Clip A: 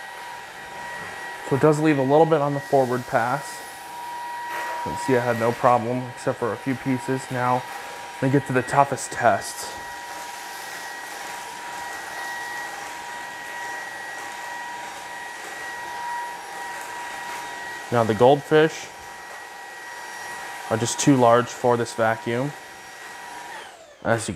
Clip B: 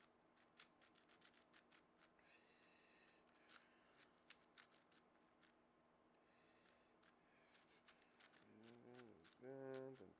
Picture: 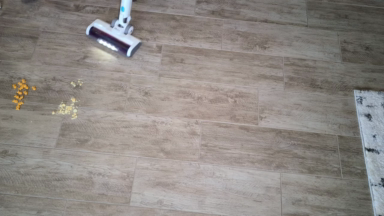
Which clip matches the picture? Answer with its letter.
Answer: A